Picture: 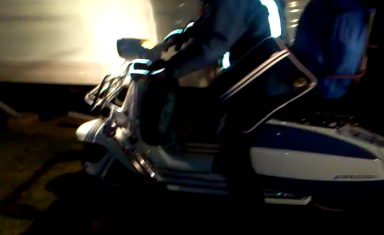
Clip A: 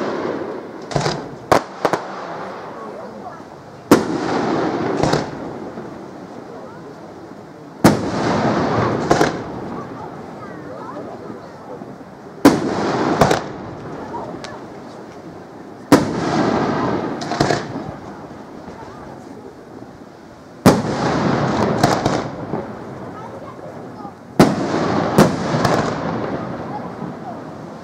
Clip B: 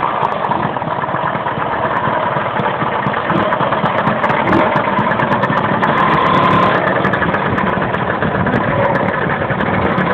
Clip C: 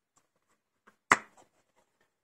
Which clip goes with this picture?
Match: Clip B